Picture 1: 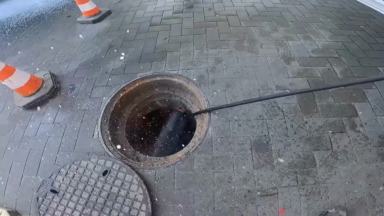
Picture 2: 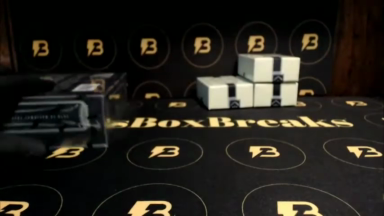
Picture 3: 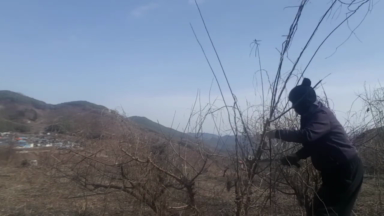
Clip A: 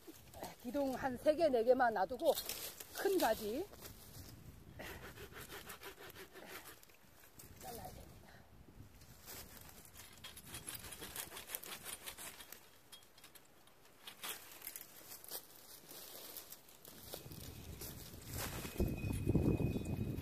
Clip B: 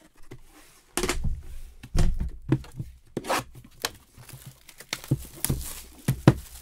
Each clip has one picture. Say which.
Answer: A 3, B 2